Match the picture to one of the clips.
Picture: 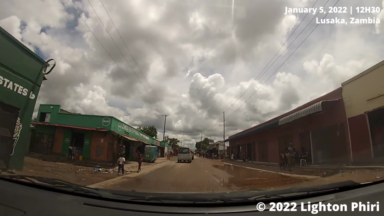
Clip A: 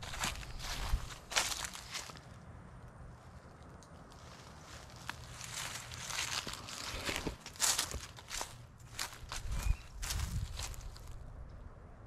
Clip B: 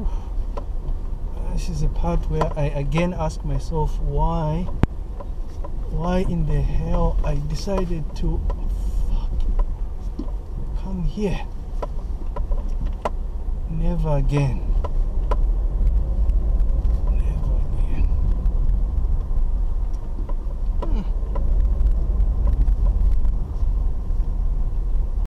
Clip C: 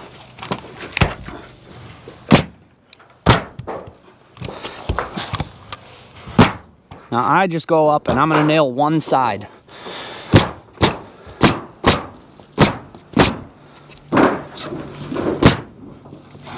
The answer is B